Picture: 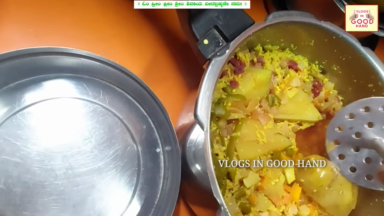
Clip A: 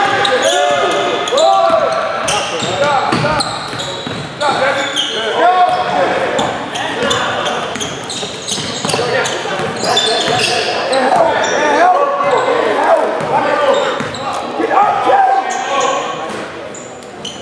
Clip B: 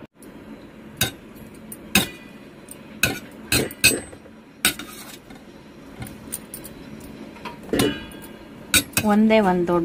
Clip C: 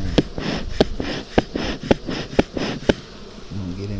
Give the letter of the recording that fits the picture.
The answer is B